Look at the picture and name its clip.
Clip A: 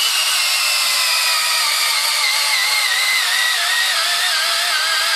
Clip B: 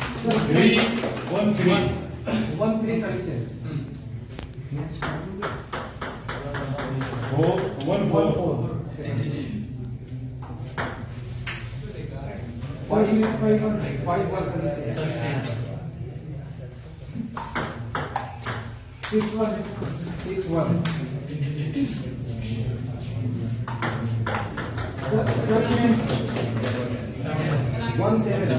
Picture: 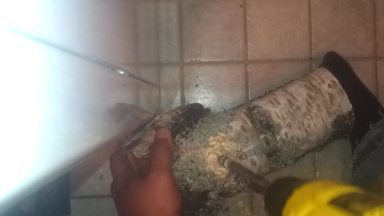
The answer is A